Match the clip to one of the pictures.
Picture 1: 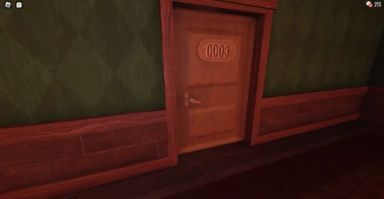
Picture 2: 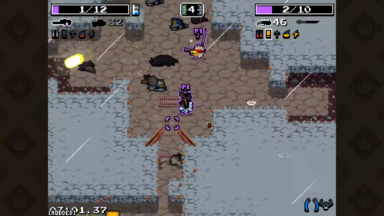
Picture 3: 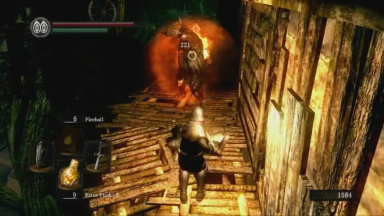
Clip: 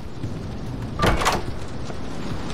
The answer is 1